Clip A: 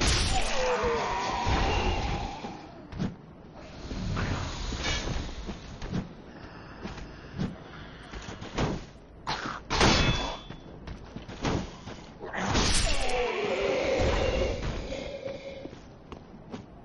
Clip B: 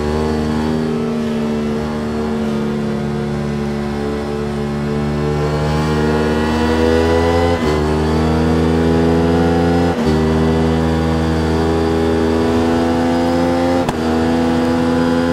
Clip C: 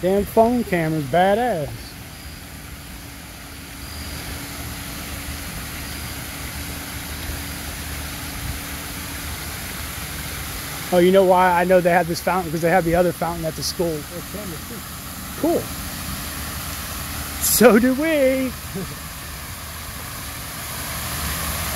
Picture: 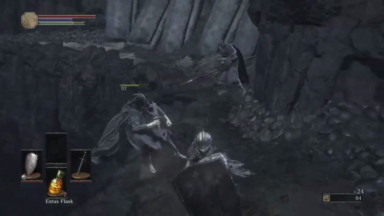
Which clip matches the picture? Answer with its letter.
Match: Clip A